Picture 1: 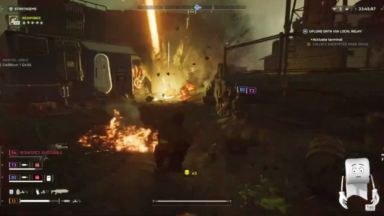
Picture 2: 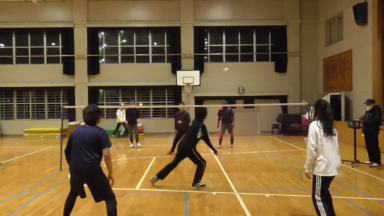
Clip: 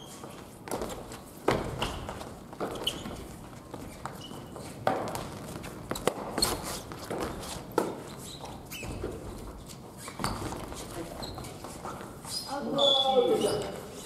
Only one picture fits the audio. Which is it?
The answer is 2